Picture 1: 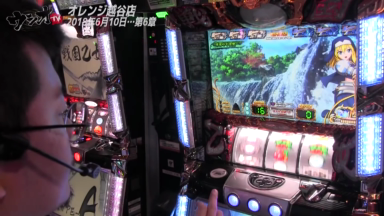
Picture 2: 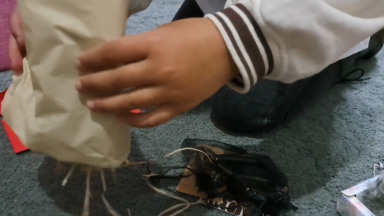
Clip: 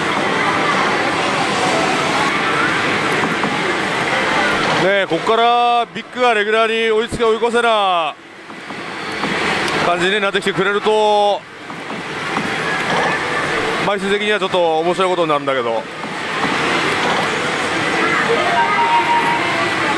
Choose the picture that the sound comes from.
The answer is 1